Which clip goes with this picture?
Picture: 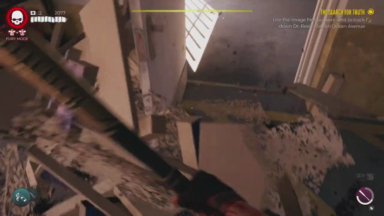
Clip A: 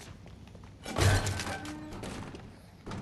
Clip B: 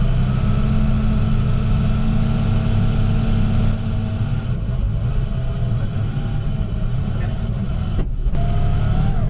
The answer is A